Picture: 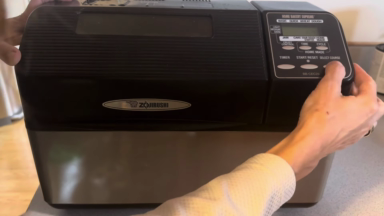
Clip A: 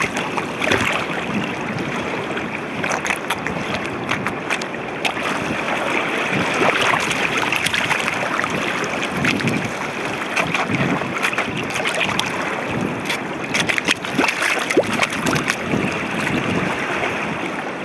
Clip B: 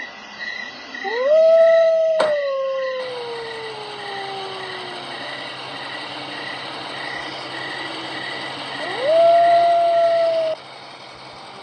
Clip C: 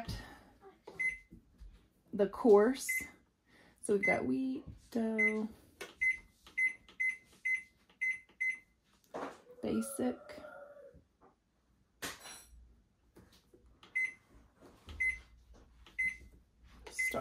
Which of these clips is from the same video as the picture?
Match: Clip C